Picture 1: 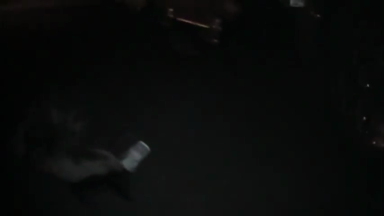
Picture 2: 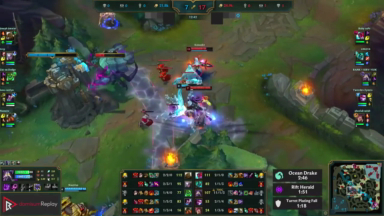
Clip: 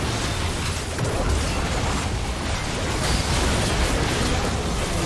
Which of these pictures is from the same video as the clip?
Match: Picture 2